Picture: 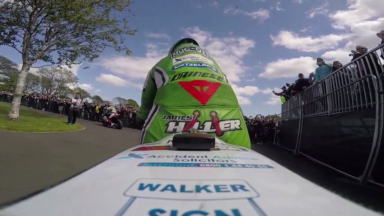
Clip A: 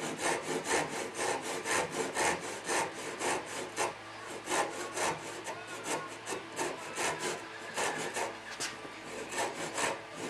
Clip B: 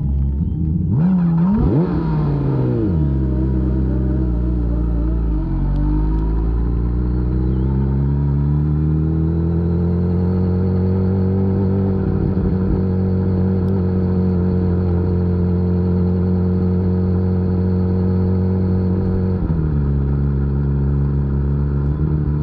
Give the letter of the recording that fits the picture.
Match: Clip B